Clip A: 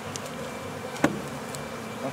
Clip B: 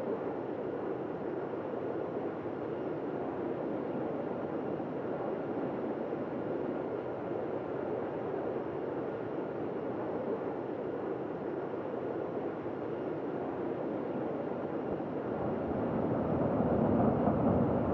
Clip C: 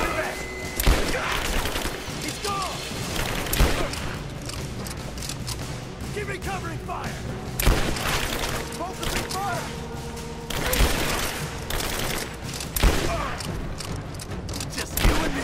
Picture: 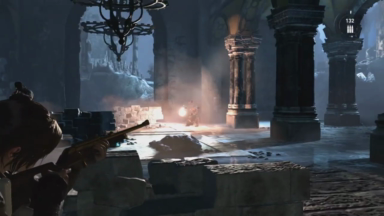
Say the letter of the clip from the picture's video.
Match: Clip C